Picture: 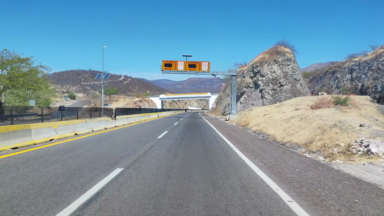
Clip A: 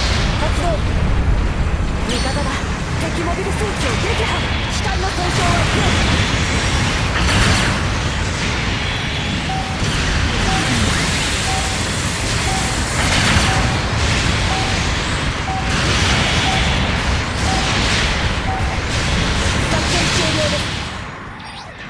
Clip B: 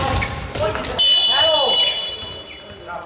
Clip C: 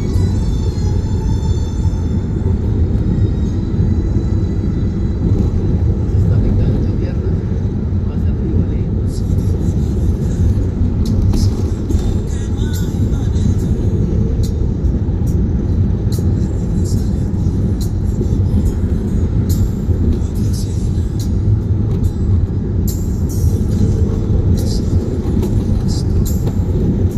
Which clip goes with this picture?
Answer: C